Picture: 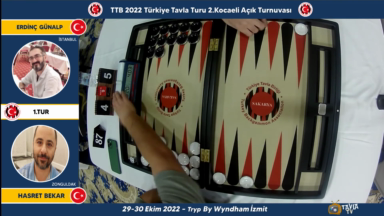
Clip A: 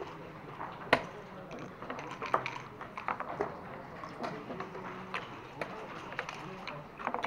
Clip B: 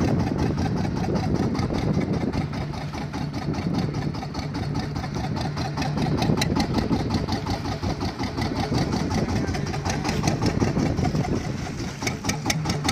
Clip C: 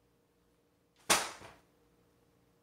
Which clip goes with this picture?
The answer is A